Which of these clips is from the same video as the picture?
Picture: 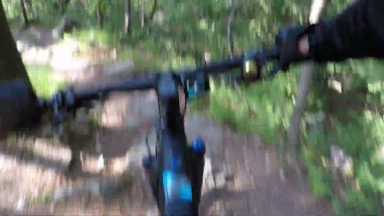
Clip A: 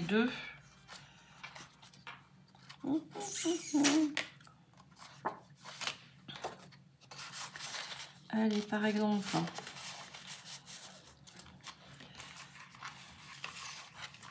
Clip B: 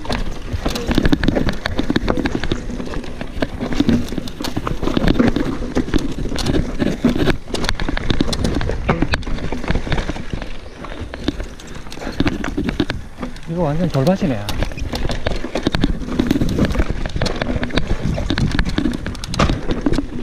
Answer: B